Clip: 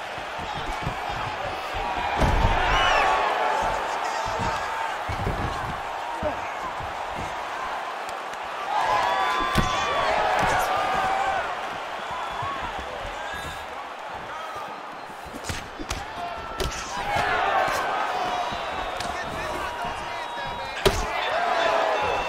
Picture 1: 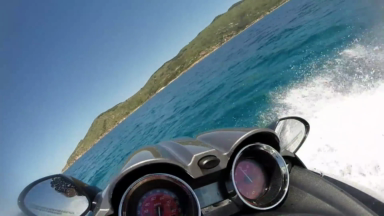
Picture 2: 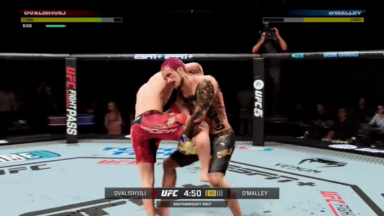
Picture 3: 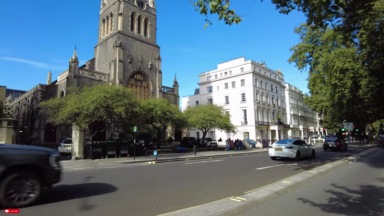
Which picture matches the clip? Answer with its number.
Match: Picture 2